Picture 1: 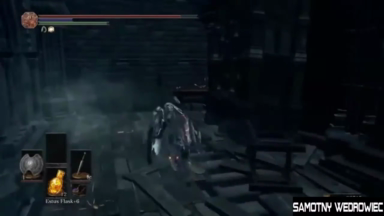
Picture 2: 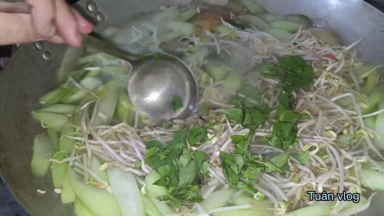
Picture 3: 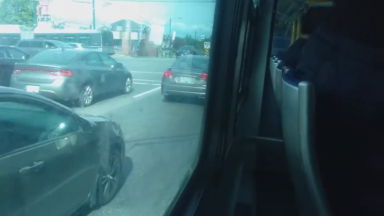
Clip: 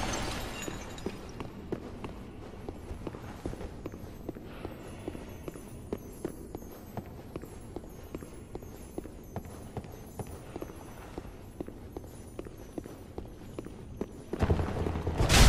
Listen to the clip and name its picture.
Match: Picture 1